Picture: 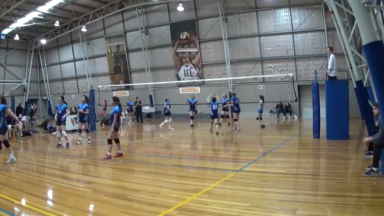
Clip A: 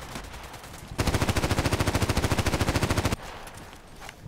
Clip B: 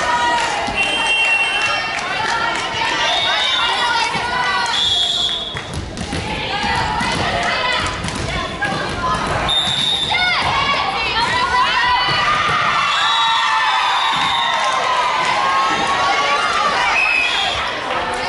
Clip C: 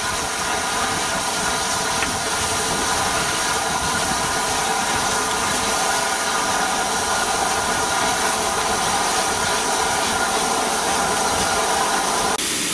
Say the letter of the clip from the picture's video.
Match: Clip B